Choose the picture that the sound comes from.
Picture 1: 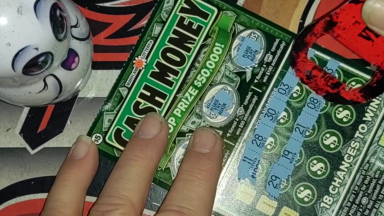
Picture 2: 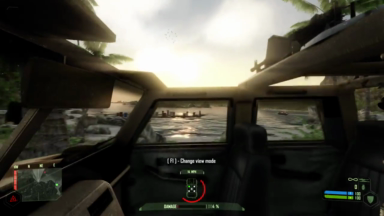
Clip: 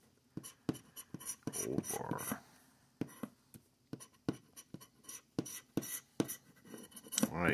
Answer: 1